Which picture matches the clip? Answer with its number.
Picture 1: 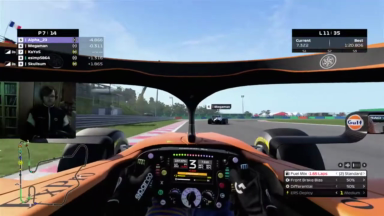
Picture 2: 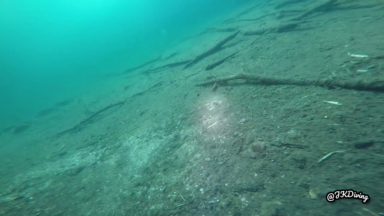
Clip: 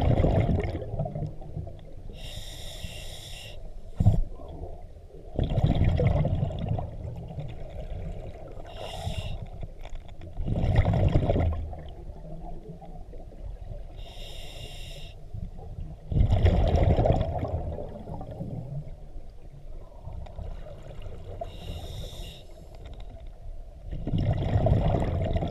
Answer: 2